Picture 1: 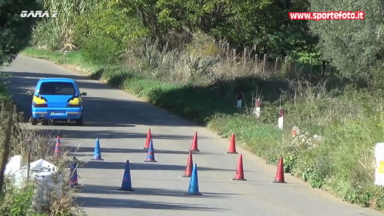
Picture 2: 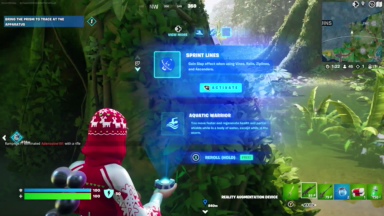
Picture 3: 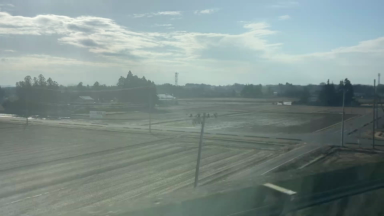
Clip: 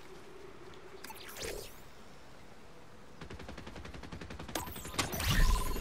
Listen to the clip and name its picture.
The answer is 2